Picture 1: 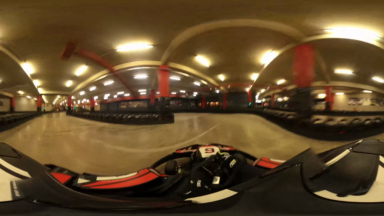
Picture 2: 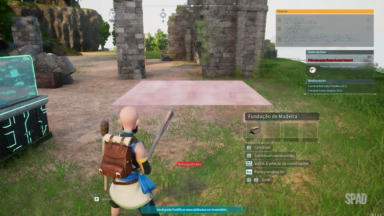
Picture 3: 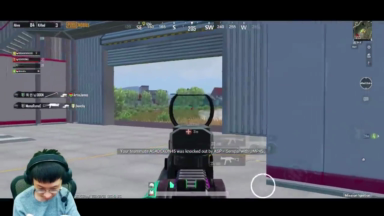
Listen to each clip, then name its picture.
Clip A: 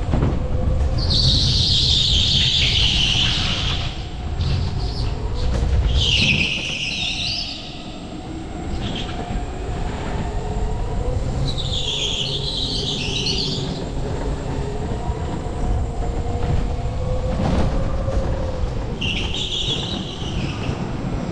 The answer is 1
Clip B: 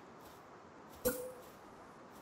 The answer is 2